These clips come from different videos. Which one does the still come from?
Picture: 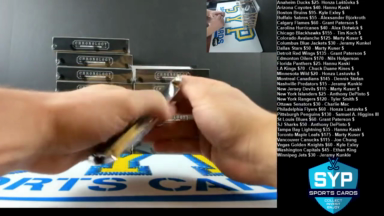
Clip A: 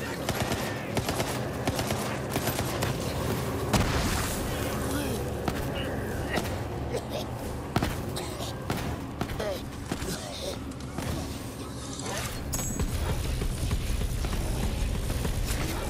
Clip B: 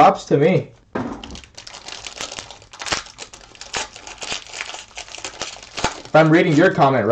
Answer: B